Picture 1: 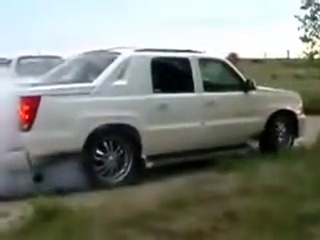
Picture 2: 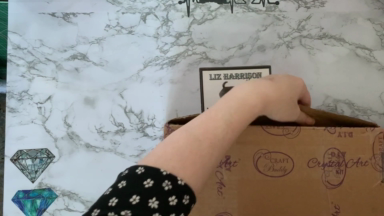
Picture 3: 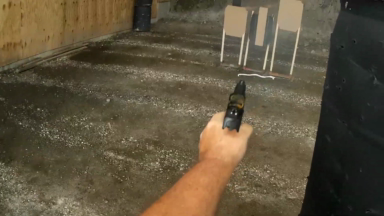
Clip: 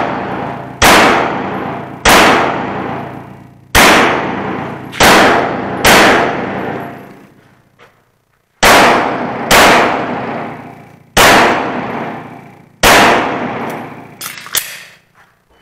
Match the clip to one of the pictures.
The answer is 3